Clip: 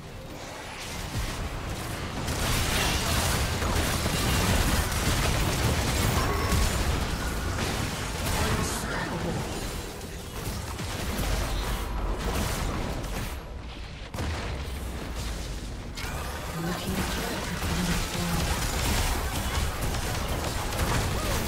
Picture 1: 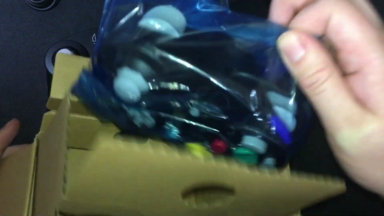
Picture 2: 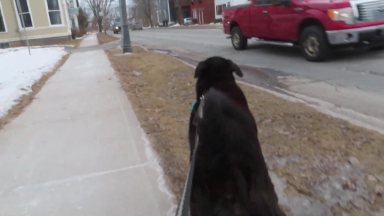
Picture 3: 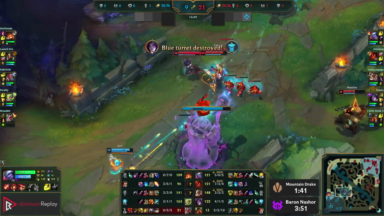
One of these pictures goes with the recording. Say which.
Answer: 3